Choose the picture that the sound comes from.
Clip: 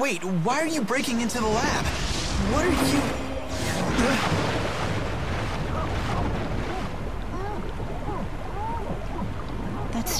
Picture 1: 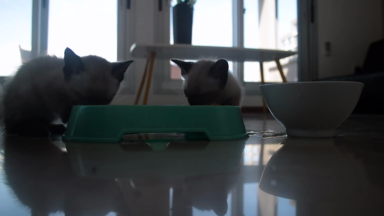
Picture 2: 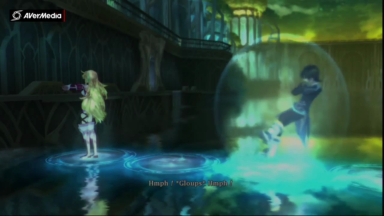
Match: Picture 2